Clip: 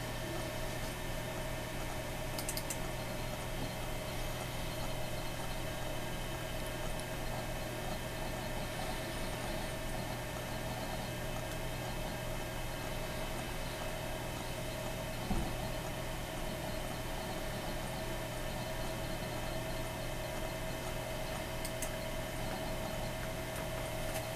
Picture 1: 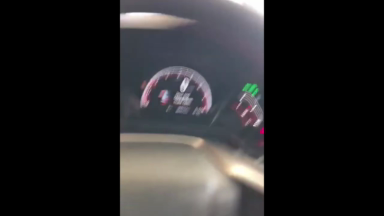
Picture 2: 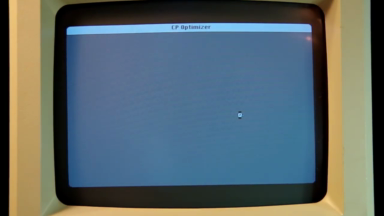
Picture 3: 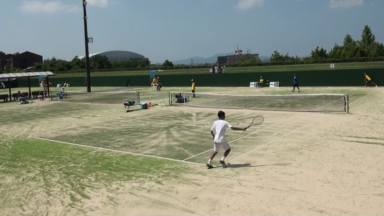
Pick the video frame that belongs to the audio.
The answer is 2